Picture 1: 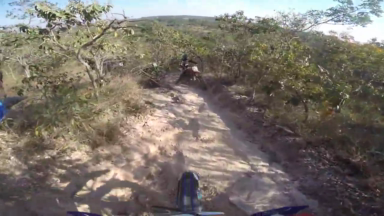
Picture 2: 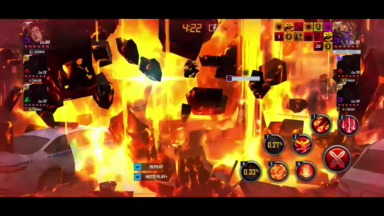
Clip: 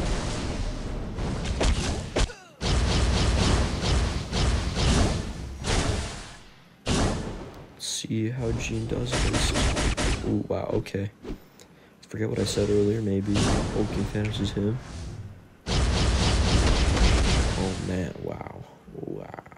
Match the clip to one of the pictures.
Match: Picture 2